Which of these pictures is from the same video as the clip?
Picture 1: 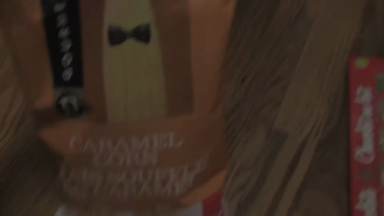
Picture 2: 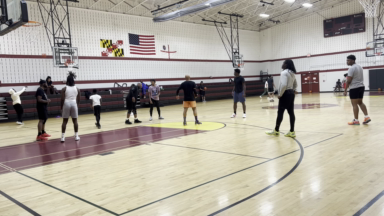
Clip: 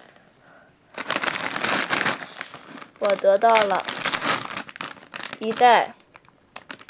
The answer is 1